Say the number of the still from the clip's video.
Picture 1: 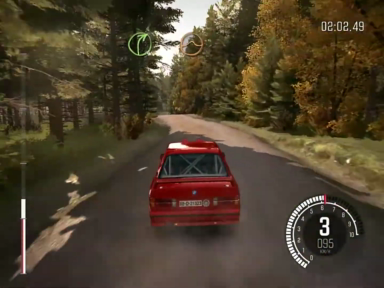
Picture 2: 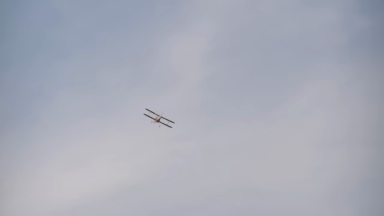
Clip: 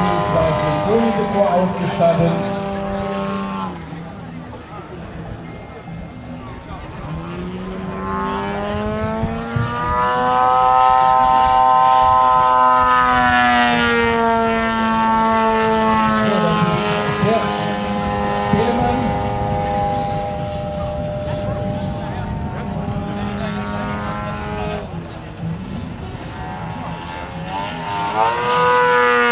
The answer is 2